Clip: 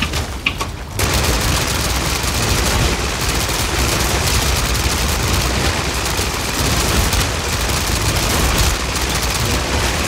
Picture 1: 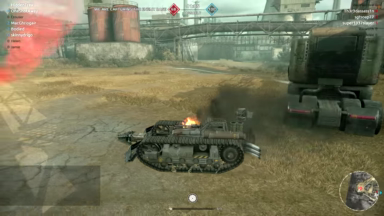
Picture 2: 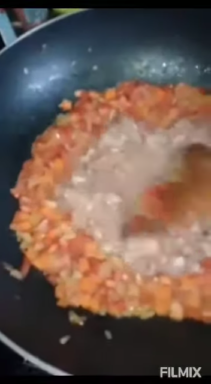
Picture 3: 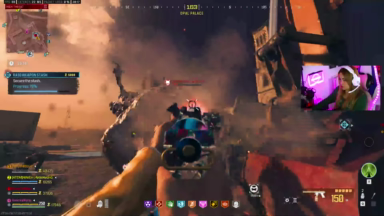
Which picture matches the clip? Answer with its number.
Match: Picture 3